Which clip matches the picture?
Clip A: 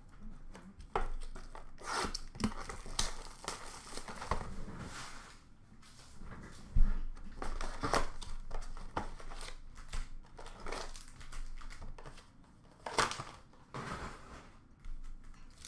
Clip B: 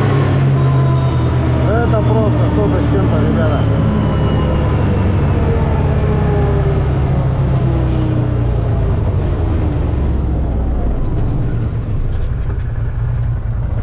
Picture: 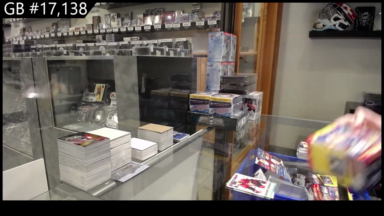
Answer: A